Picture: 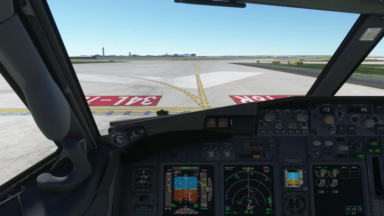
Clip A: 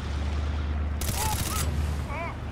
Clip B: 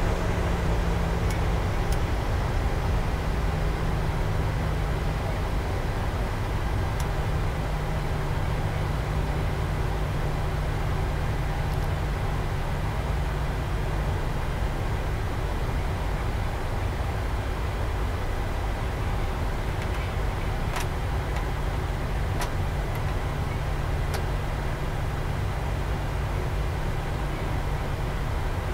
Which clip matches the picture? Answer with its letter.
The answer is B